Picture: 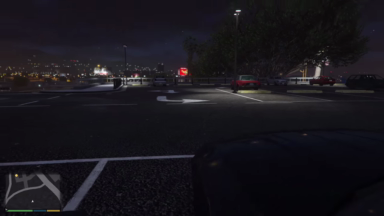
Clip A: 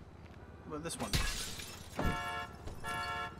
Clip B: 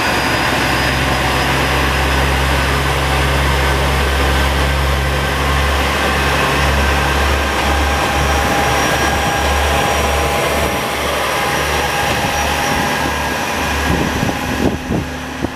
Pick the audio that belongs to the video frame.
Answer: A